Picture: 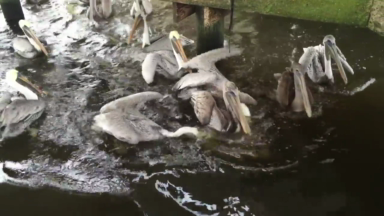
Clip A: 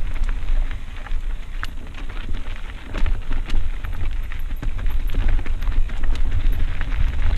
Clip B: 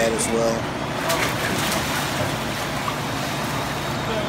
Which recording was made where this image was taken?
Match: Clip B